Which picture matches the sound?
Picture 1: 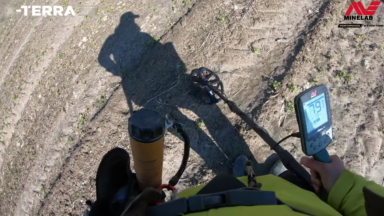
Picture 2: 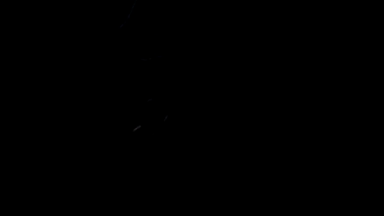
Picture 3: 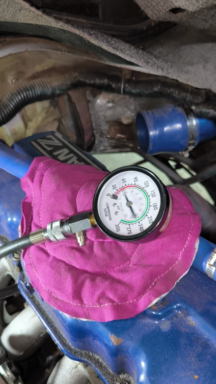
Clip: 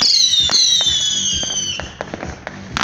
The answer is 2